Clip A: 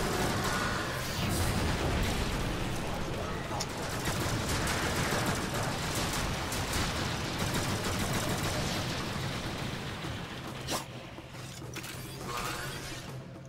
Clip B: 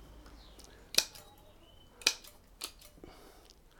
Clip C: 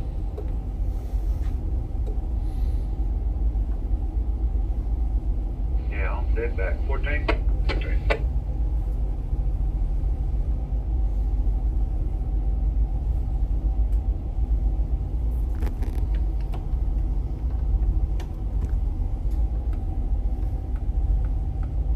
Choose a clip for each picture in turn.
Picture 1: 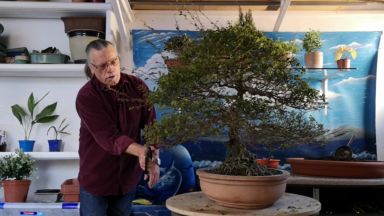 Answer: B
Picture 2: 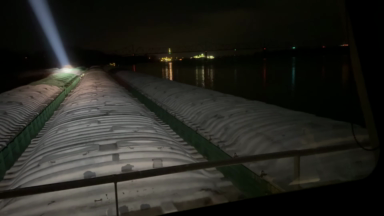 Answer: C